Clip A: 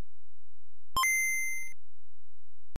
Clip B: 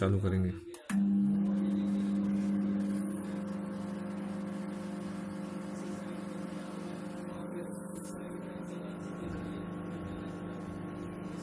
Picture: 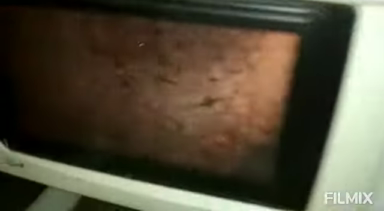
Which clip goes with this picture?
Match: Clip B